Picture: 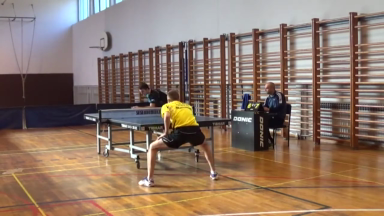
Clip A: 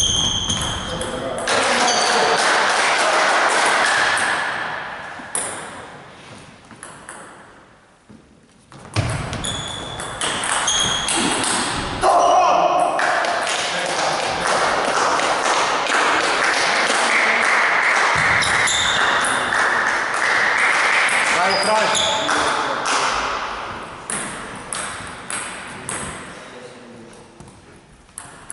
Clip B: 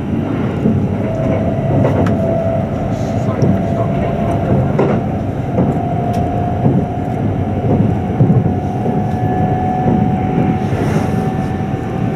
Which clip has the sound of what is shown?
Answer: A